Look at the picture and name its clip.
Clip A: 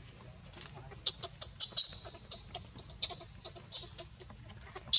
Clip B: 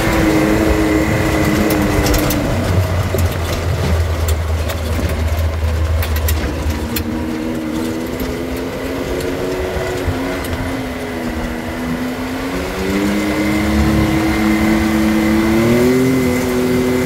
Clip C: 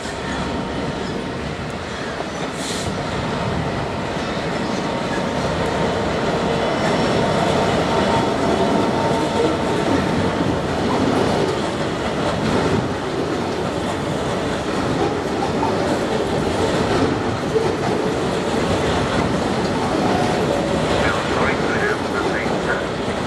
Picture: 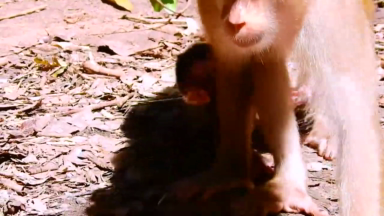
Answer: A